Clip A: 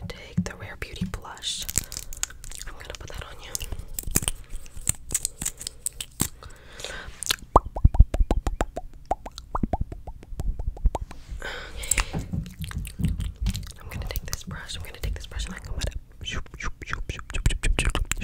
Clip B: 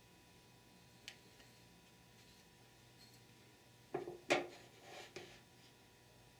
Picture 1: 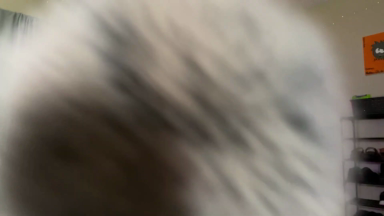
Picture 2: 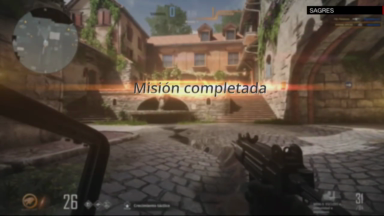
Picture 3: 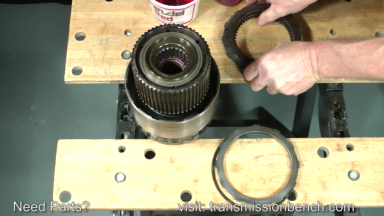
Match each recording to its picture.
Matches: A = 1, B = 3